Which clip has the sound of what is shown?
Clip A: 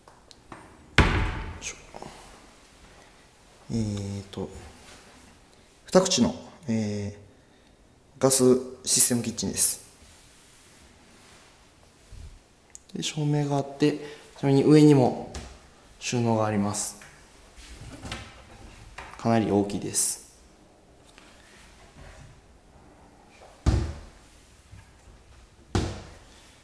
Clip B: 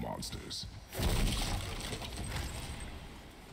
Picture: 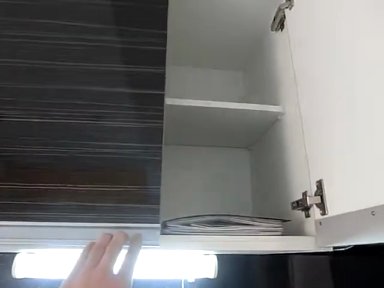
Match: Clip A